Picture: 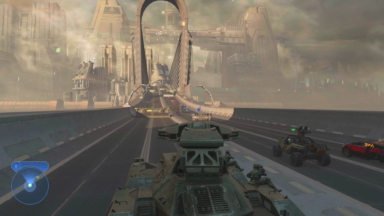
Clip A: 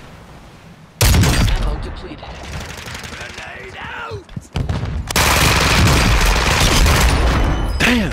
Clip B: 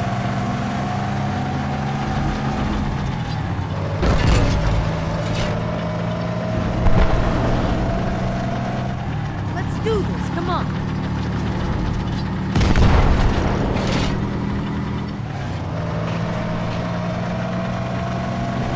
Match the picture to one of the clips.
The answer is B